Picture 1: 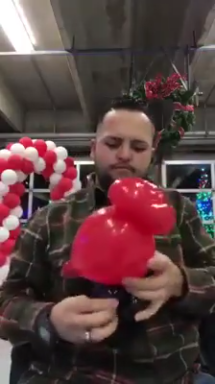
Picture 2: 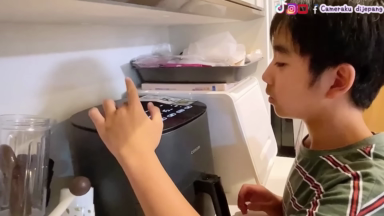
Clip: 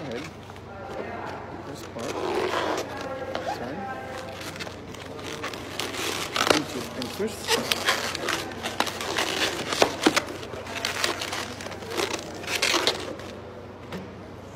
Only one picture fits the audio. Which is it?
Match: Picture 1